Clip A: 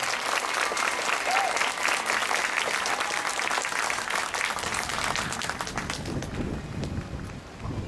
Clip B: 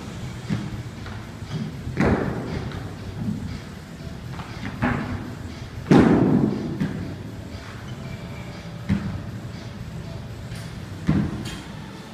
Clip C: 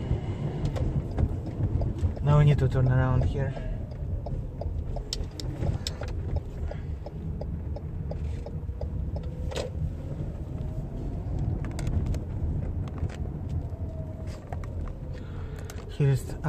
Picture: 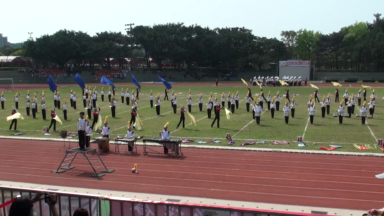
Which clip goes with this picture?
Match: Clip A